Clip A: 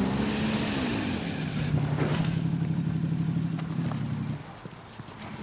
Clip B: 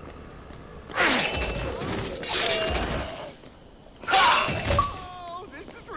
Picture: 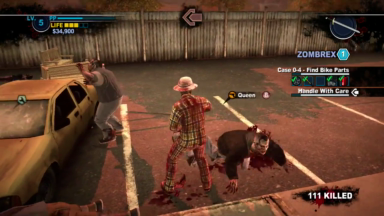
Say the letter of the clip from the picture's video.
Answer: B